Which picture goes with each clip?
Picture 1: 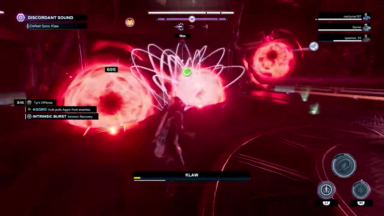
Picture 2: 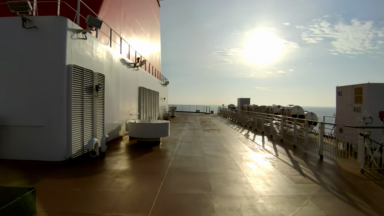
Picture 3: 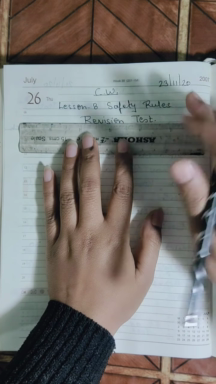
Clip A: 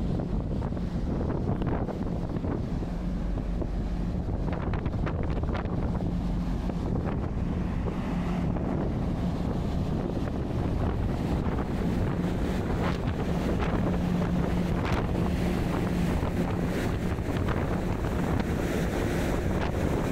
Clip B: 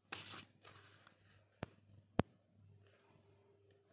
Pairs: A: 2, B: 3